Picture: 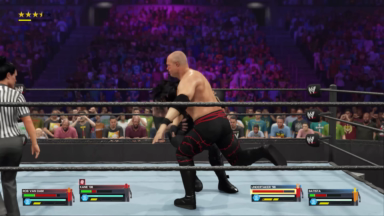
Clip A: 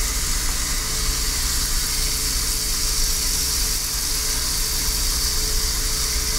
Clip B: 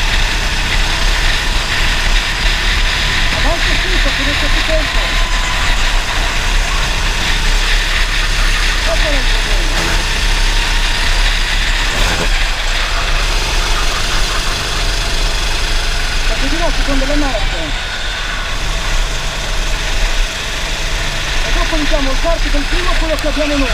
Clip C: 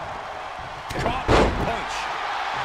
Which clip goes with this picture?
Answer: C